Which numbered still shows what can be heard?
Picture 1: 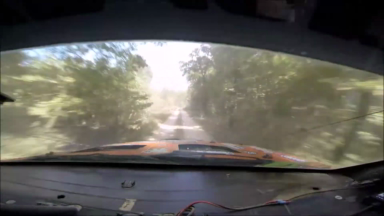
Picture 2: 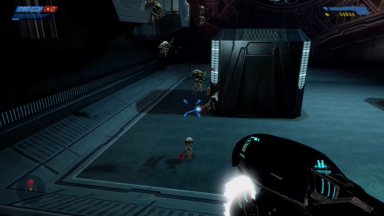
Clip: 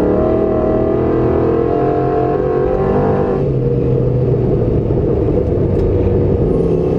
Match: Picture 1